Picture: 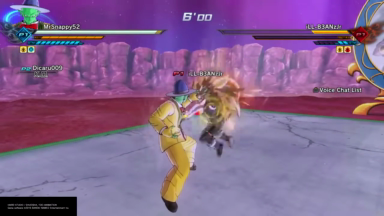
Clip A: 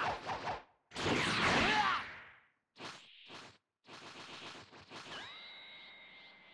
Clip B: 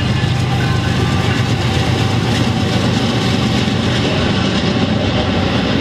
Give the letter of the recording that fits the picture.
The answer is A